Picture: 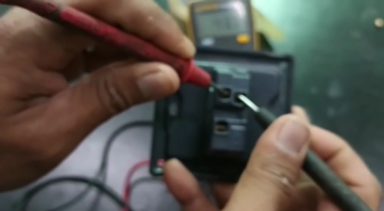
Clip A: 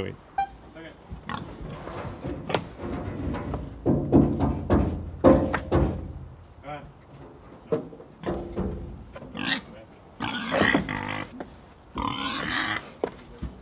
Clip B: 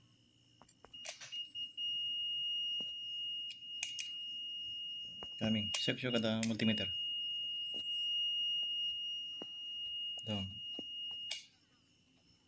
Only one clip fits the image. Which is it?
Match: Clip B